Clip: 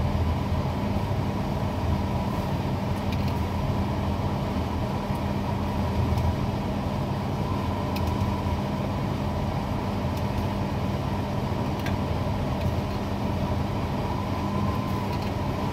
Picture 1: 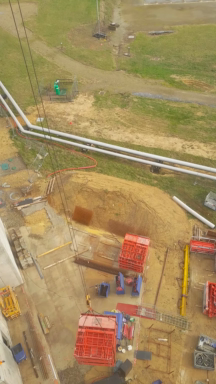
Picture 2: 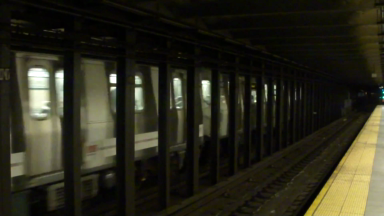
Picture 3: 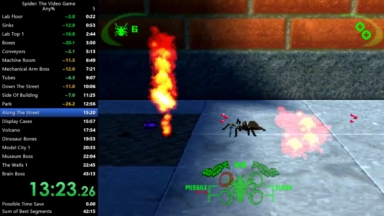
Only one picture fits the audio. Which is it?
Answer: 1